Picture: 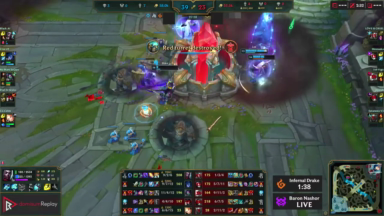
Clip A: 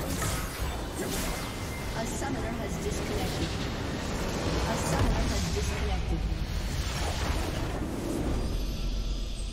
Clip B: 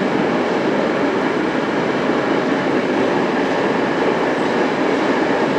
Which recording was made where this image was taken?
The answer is A